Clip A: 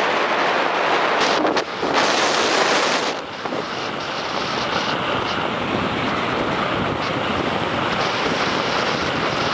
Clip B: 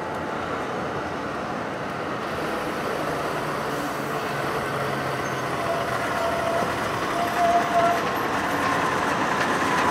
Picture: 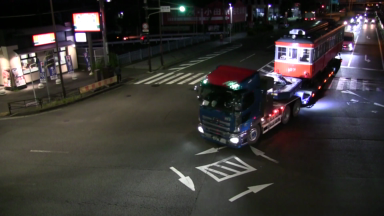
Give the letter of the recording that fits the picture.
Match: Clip B